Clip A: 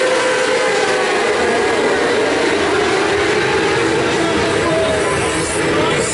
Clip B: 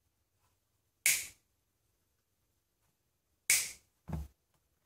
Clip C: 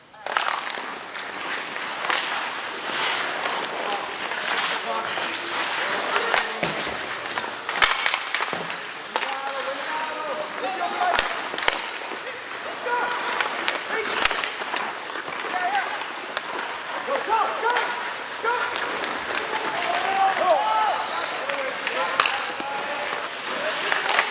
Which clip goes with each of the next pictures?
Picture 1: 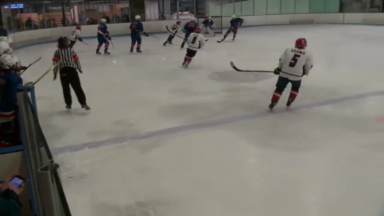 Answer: C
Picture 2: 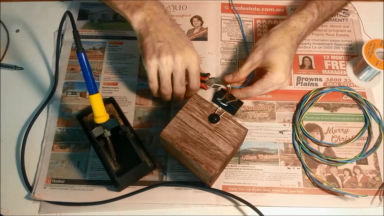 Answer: B